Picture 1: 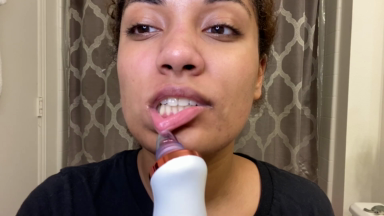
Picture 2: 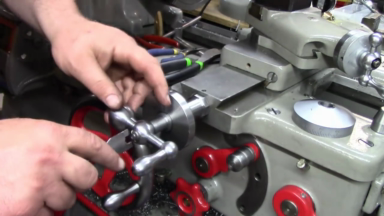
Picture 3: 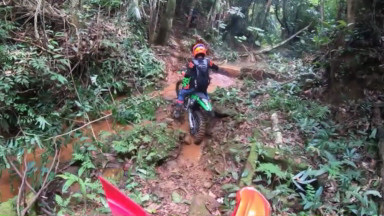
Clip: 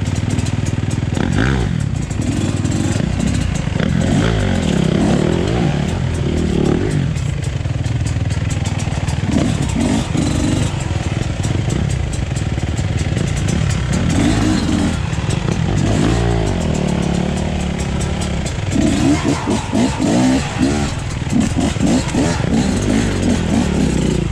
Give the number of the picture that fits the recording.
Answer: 3